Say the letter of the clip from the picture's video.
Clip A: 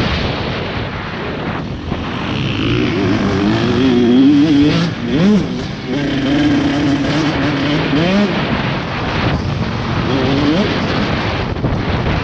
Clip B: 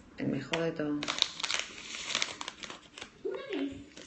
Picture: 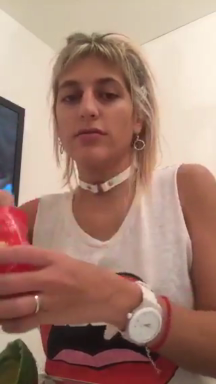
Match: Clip B